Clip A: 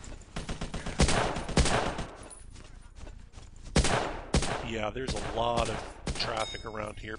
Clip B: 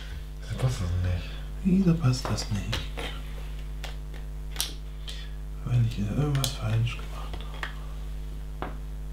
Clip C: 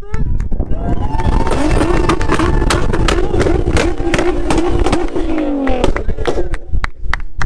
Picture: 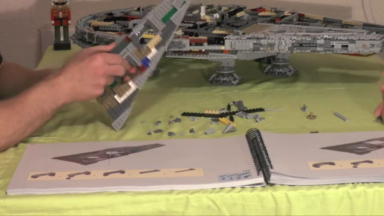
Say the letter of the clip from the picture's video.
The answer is B